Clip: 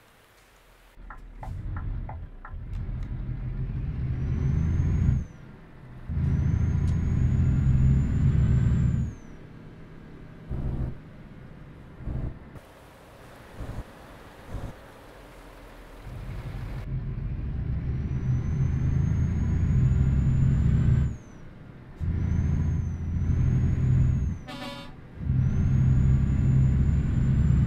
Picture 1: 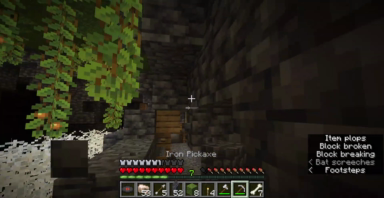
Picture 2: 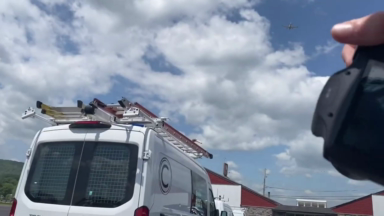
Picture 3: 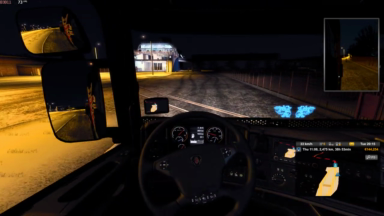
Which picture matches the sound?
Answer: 3